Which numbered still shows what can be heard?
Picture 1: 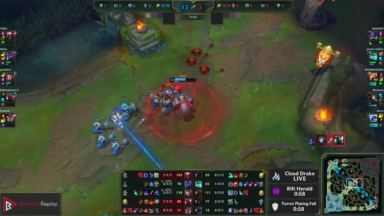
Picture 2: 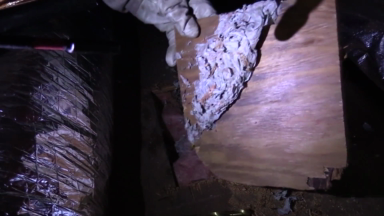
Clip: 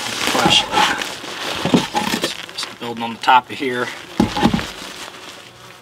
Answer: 2